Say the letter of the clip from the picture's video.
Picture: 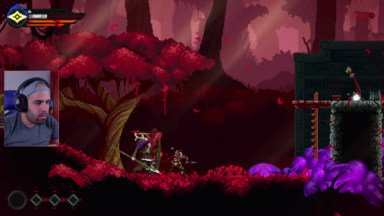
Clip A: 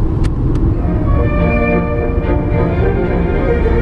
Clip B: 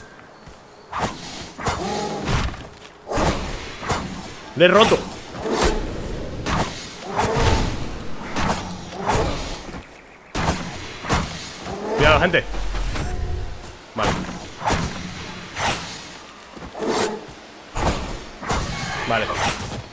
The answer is B